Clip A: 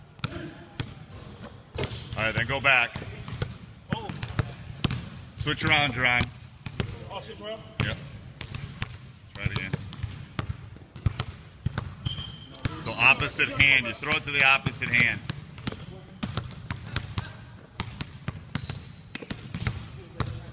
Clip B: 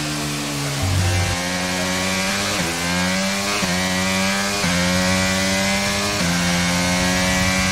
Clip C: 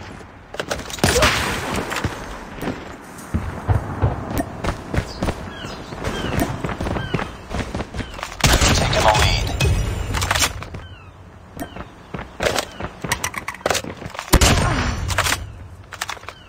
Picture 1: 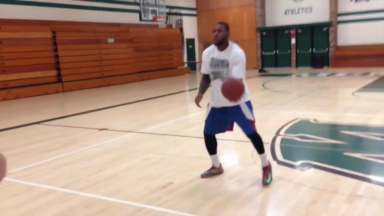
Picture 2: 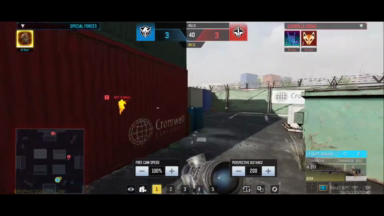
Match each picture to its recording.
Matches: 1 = A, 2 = C